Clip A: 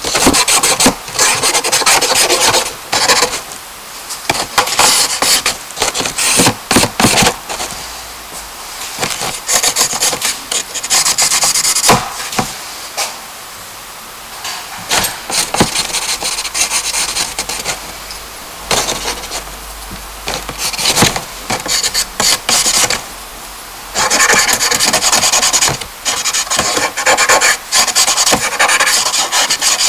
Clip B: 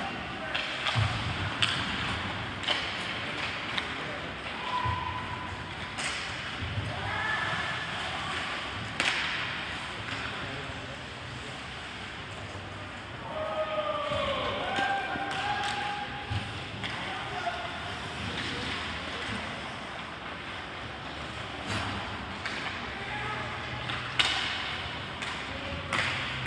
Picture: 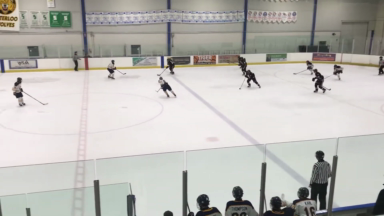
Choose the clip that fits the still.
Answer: B